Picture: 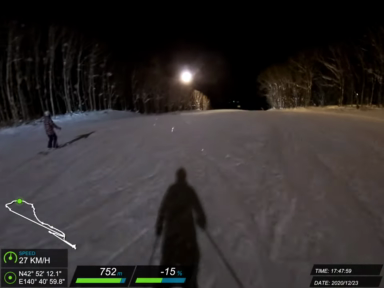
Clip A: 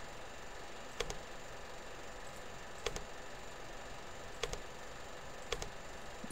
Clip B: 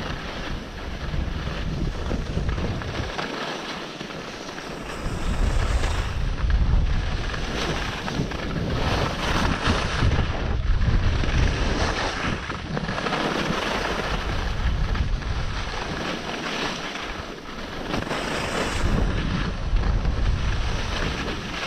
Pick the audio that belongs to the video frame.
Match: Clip B